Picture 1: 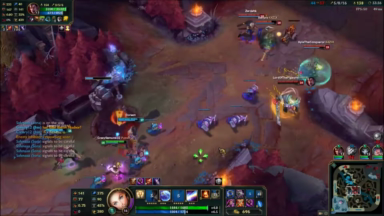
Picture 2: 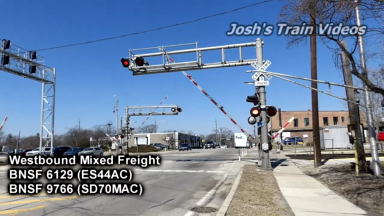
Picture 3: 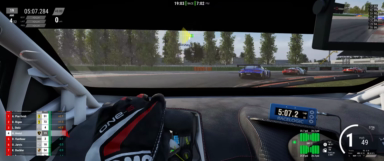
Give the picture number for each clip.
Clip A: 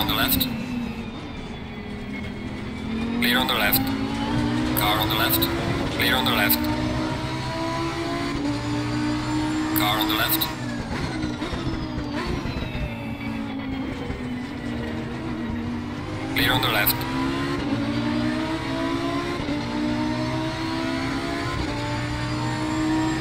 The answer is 3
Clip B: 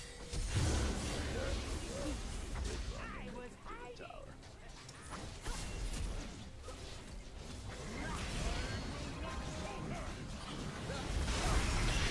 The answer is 1